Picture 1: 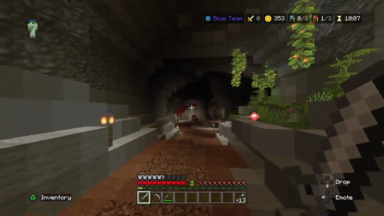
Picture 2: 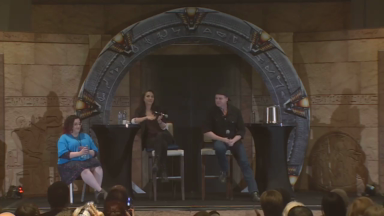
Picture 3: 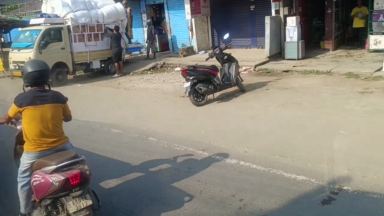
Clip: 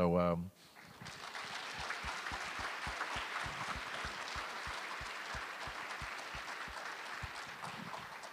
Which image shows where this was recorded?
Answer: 2